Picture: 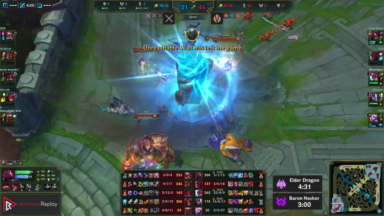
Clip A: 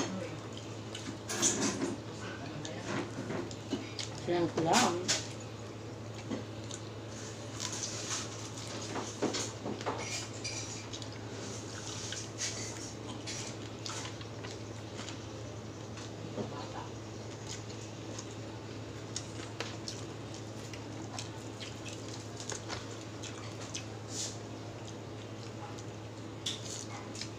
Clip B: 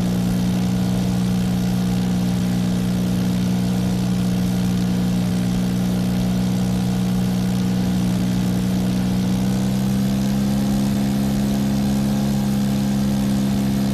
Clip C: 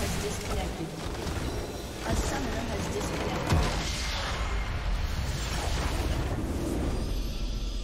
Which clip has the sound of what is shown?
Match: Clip C